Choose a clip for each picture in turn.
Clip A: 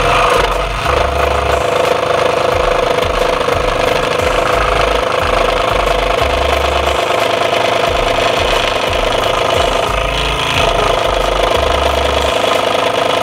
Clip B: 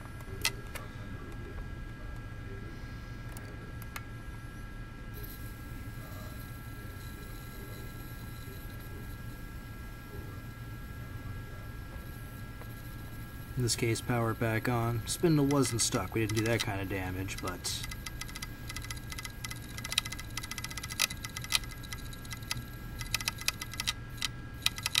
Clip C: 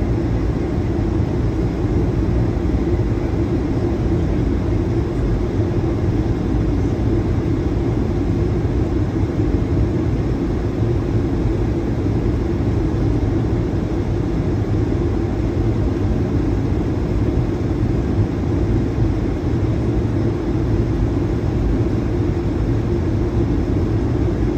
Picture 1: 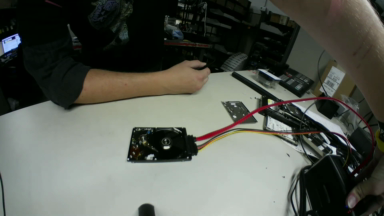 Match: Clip B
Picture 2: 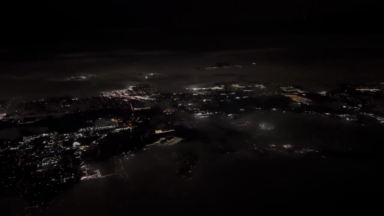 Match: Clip C